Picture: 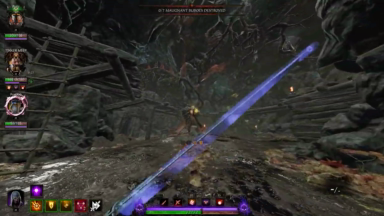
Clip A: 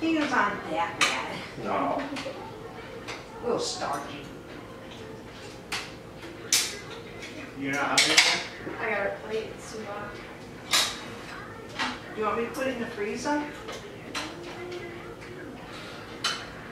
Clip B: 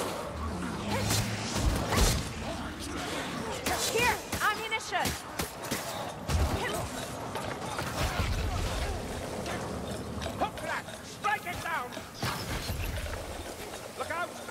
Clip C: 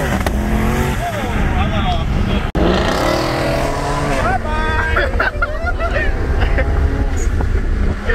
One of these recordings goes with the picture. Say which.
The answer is B